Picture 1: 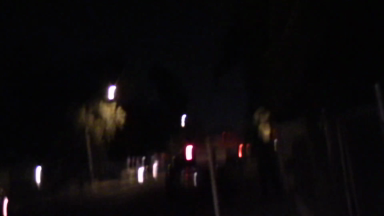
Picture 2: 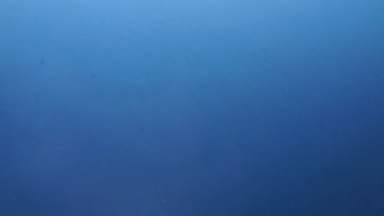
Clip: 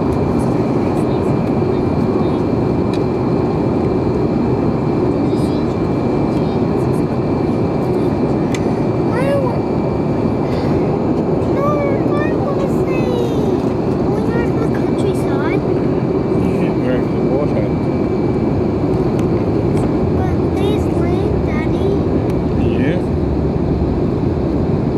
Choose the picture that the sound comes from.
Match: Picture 2